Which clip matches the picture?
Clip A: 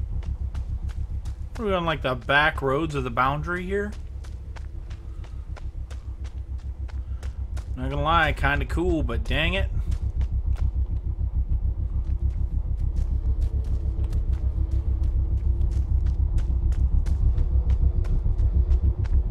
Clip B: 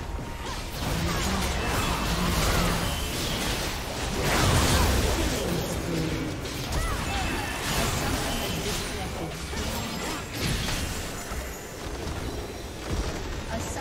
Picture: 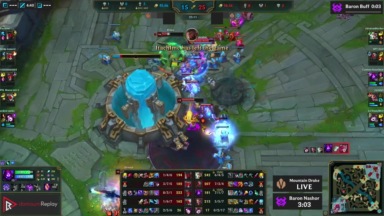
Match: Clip B